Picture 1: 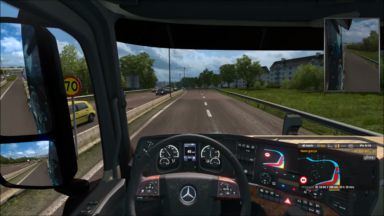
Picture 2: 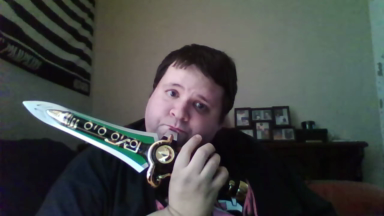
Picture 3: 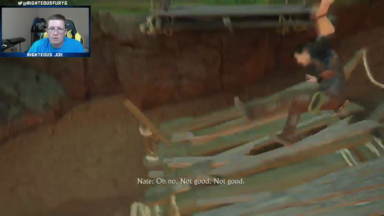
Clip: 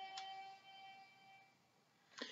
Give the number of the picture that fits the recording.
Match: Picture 2